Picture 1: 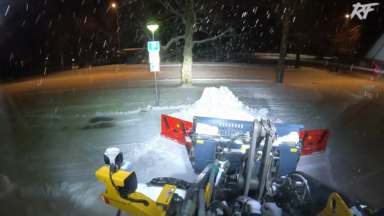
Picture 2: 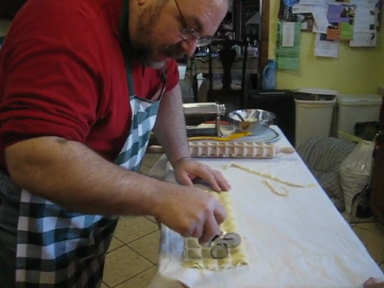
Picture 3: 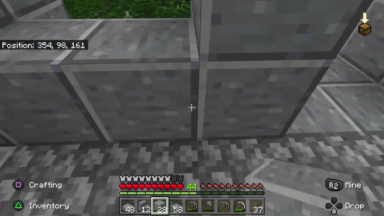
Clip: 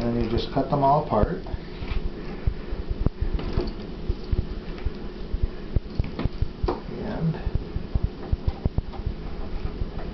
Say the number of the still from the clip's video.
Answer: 2